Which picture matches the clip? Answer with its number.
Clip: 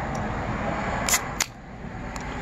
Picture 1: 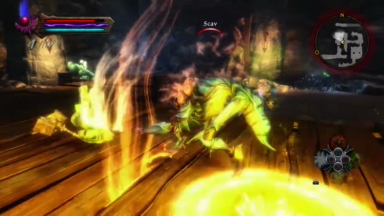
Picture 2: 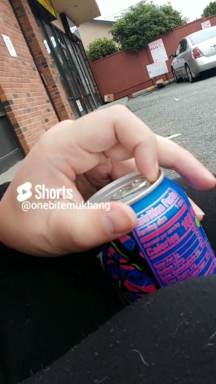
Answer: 2